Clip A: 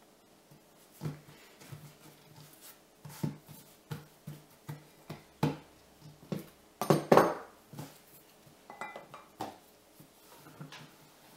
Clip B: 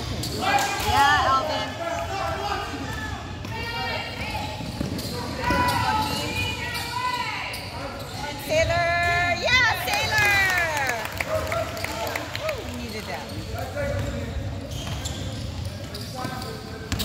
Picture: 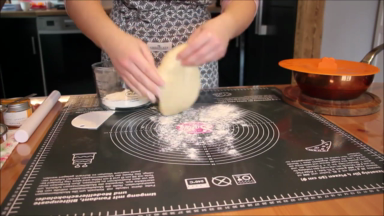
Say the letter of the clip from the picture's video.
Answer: A